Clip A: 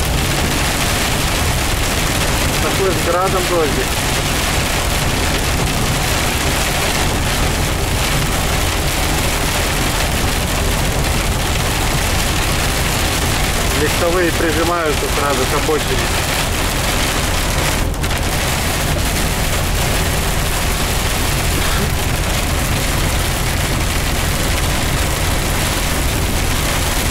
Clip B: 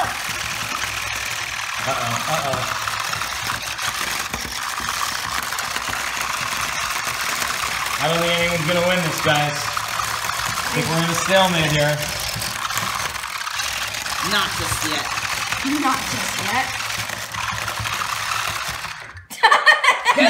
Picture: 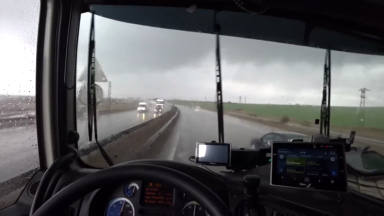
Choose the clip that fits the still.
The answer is A